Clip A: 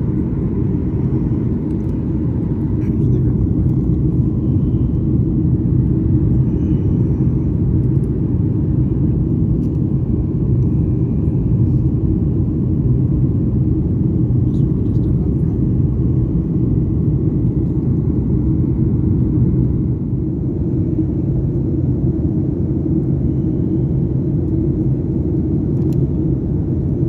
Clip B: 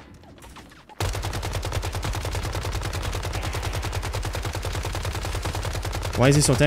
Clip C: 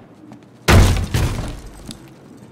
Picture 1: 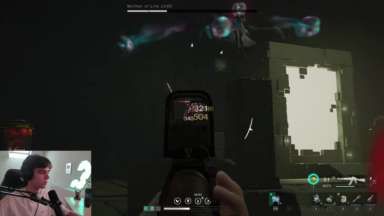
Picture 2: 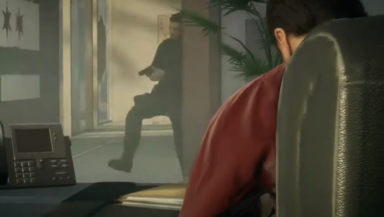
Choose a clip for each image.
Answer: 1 B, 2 C